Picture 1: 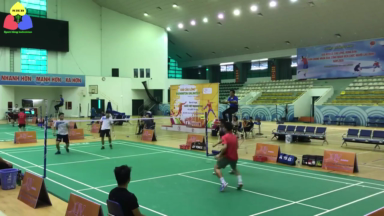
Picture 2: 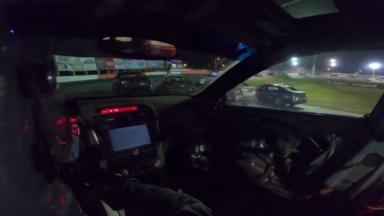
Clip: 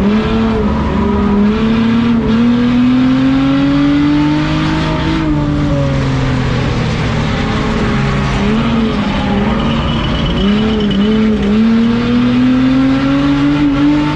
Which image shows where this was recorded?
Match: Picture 2